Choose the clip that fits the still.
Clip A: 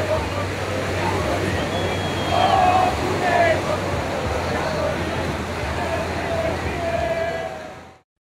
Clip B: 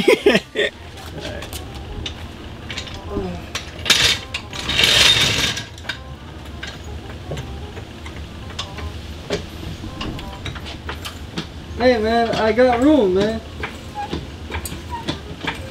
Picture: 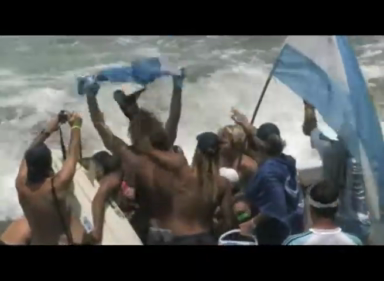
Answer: A